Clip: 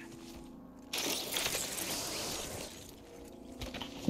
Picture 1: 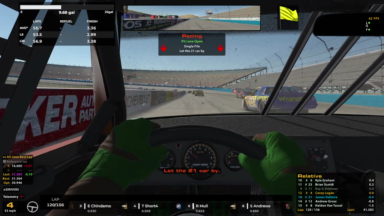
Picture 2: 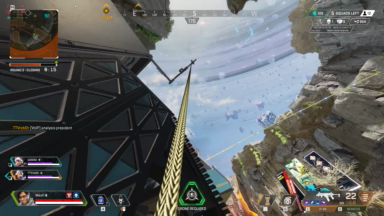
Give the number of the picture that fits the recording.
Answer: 2